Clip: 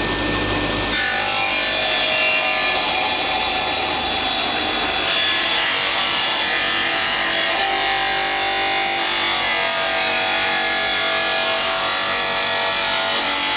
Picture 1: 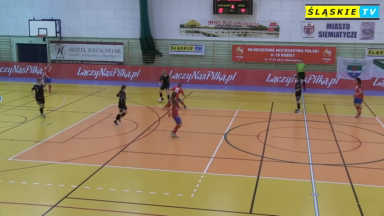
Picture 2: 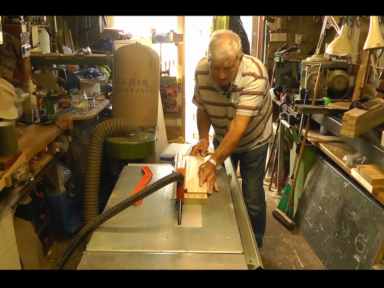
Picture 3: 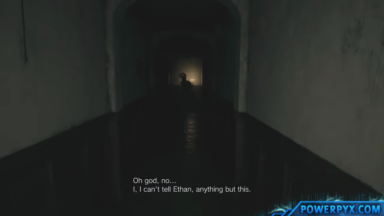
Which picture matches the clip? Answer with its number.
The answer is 2